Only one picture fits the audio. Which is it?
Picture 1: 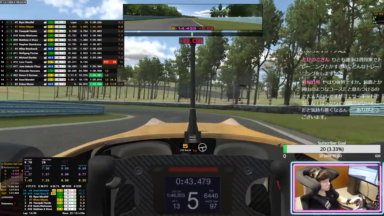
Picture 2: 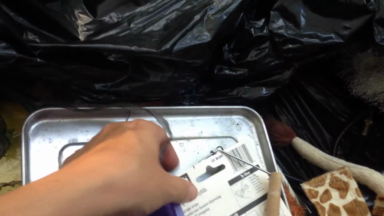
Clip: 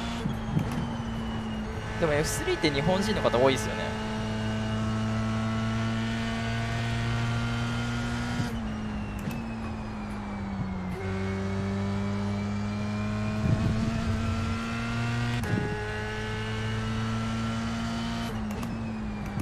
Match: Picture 1